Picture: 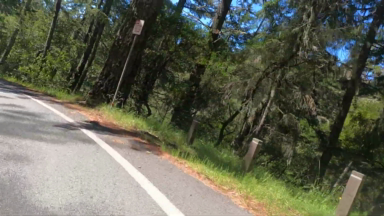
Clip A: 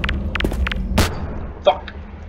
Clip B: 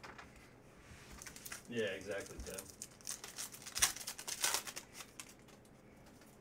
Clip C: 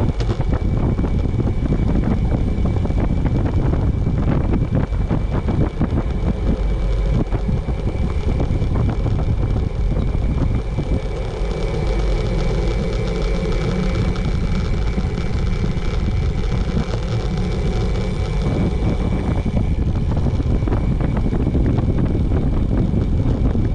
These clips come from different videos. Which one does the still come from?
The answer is C